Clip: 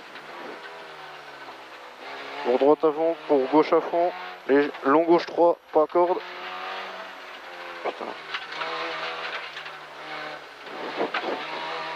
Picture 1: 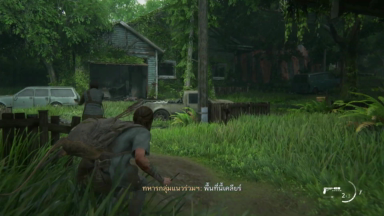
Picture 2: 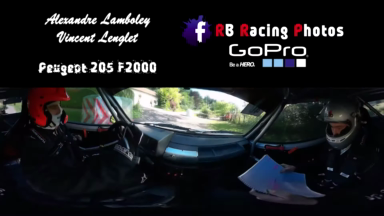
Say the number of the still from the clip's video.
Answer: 2